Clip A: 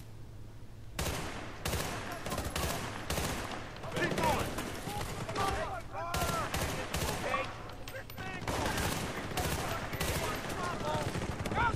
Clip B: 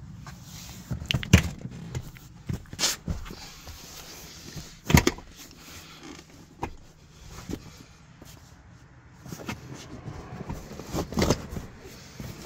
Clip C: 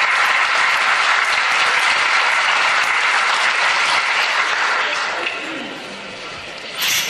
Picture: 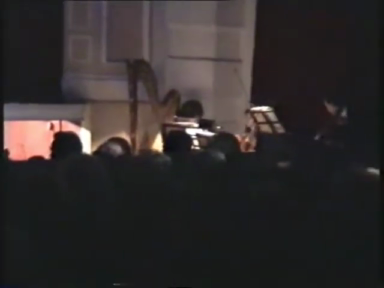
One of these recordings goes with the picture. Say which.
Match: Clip C